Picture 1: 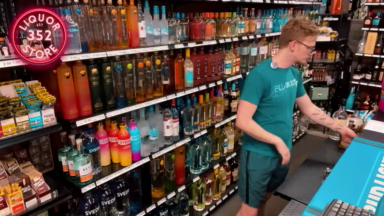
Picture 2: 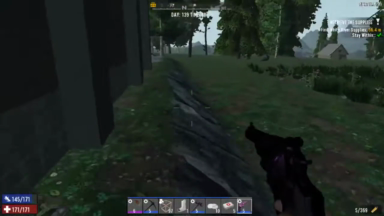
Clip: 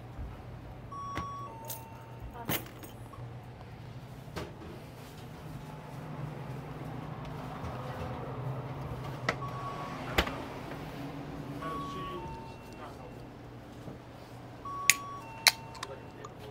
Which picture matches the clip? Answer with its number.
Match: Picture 1